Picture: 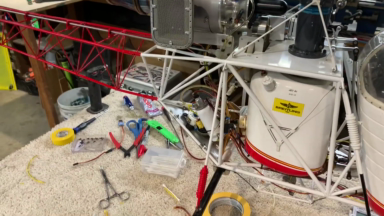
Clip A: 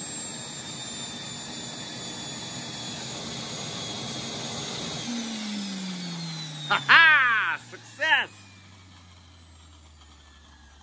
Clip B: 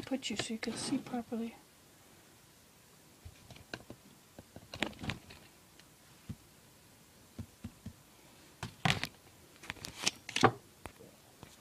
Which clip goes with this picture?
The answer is A